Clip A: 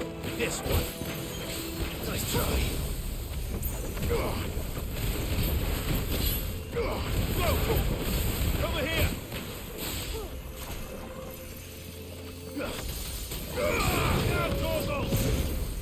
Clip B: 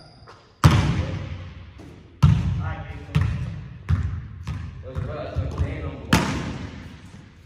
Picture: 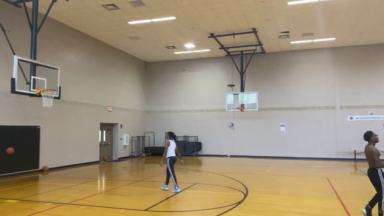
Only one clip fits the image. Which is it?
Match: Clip B